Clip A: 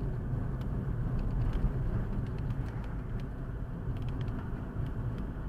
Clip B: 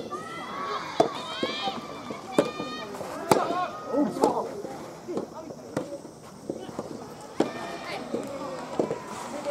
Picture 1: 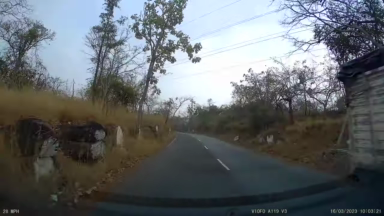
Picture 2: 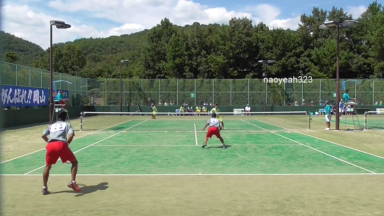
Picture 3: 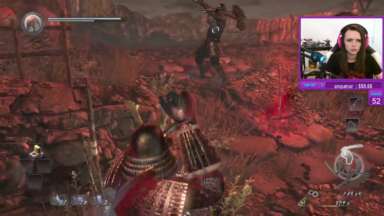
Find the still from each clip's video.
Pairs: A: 1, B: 2